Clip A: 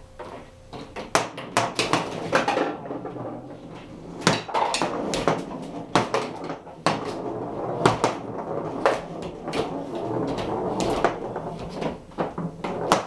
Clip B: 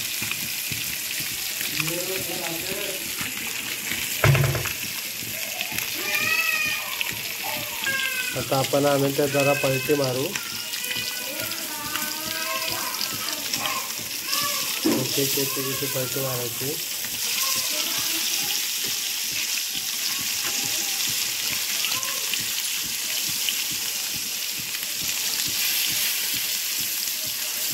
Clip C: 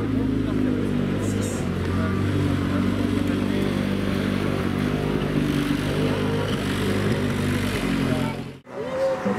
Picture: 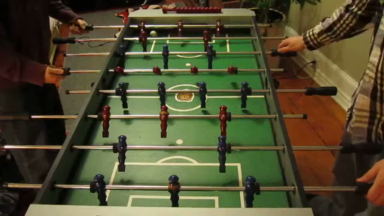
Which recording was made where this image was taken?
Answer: A